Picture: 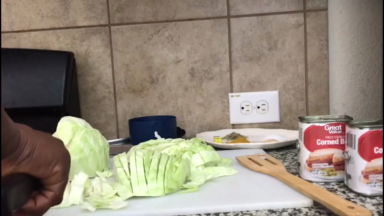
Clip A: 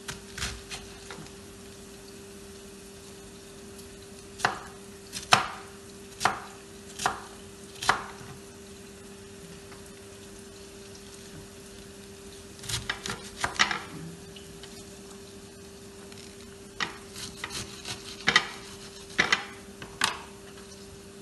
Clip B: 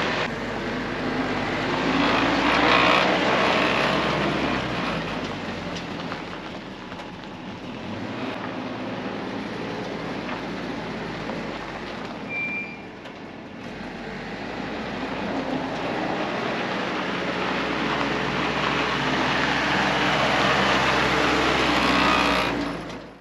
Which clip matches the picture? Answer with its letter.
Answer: A